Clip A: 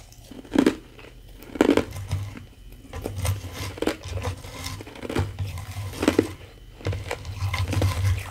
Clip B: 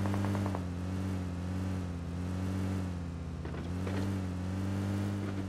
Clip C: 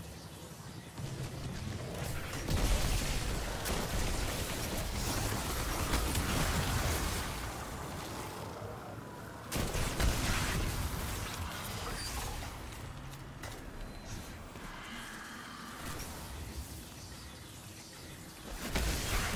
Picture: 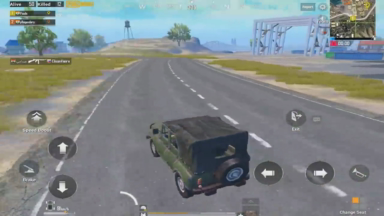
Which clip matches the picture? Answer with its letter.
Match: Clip B